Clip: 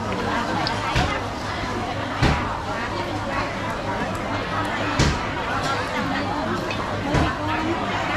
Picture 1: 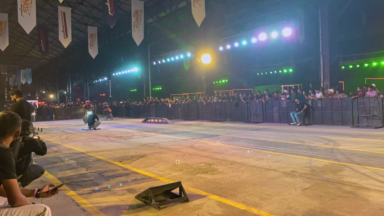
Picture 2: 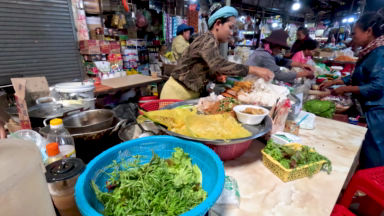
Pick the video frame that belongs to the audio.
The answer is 2